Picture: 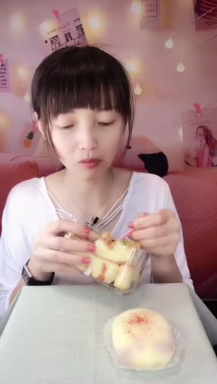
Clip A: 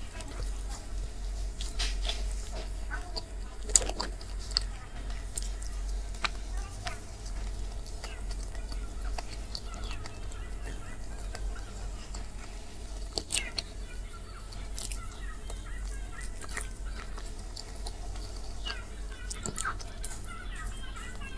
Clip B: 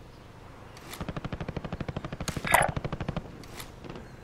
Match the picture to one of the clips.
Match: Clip A